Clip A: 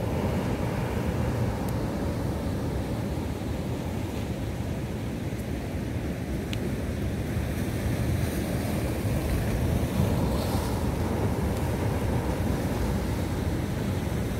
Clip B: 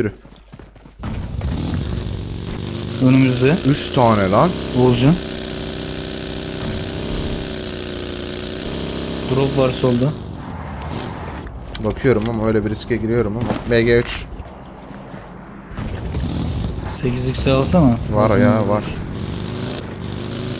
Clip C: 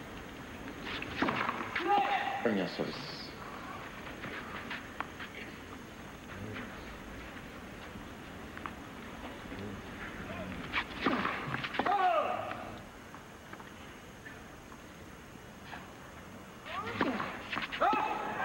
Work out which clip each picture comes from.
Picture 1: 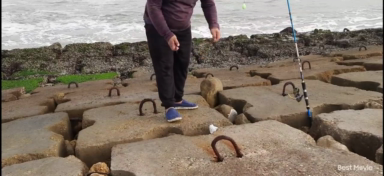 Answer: A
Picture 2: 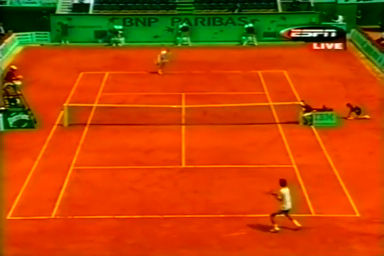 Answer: C